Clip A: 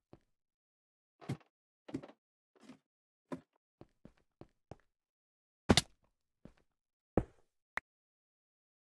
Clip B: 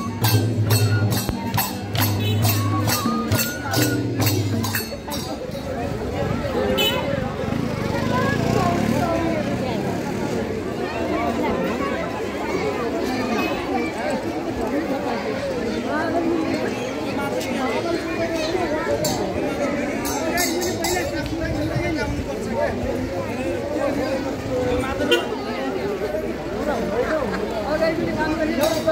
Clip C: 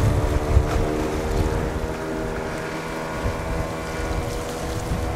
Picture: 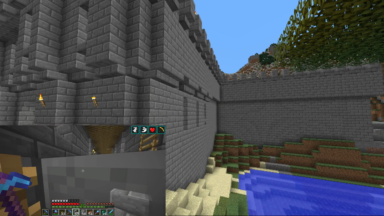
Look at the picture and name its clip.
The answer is A